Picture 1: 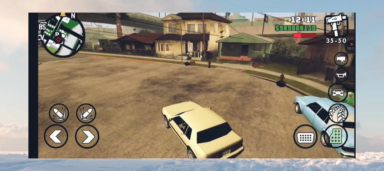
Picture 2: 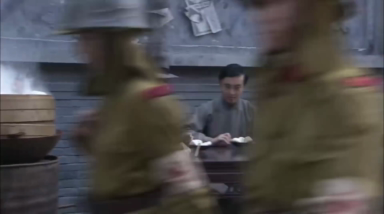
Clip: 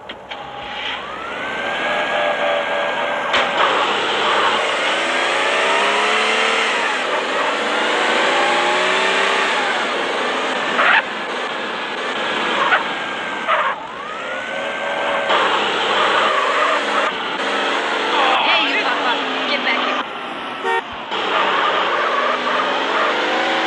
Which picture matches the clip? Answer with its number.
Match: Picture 1